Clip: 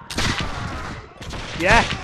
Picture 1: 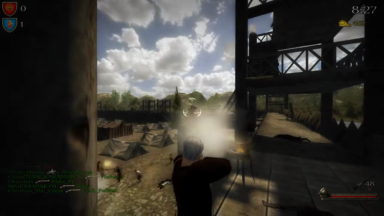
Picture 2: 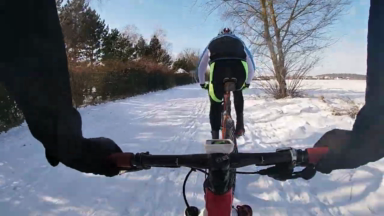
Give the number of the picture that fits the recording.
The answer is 1